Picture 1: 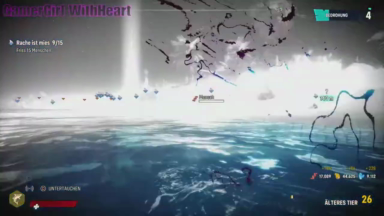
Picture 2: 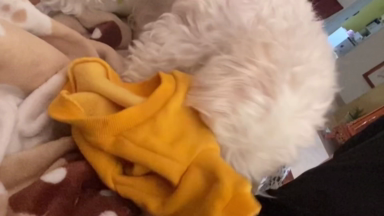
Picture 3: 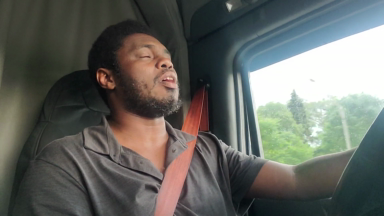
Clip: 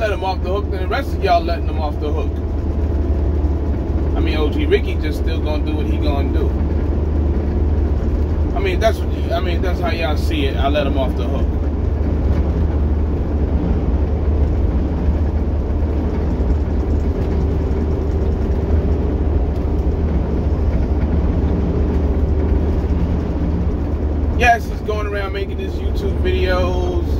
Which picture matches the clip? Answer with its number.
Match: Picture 3